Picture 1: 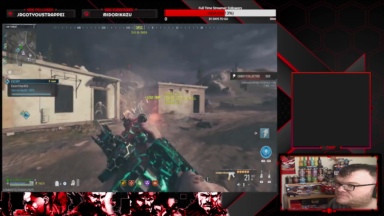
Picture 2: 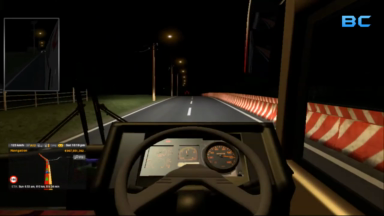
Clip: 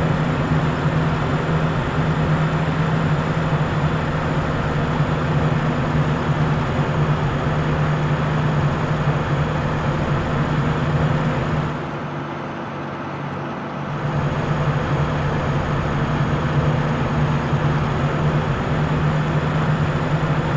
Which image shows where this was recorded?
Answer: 2